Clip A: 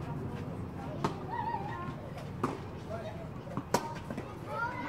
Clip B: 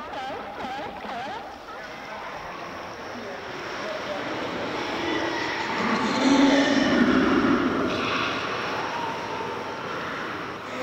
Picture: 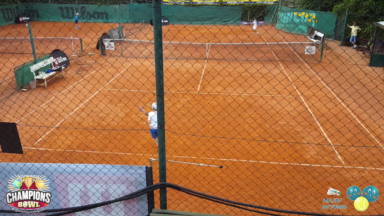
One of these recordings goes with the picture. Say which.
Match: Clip A